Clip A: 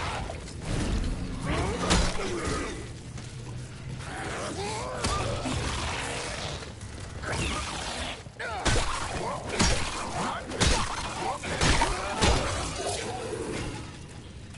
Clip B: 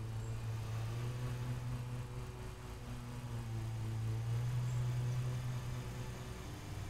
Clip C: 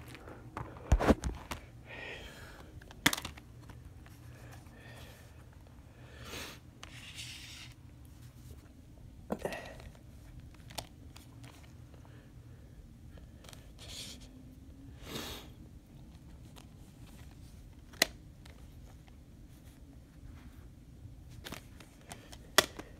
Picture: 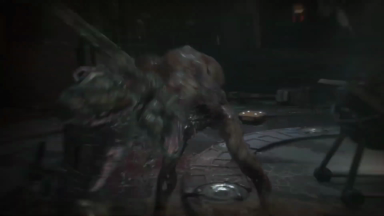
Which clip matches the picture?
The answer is A